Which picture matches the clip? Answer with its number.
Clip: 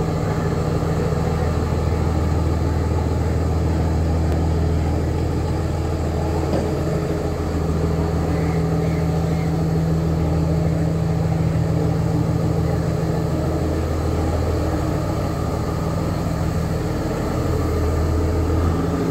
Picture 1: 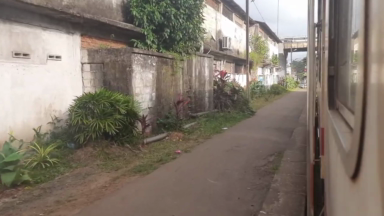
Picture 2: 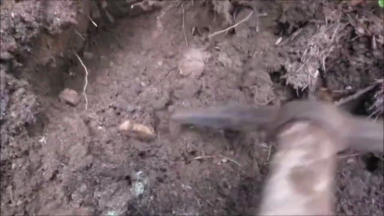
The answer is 1